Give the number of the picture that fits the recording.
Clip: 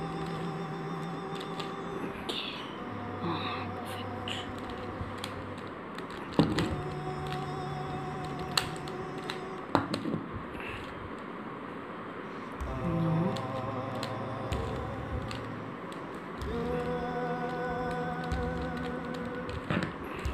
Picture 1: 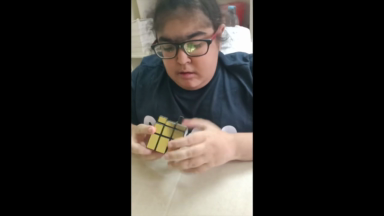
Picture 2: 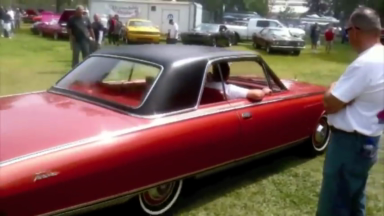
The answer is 1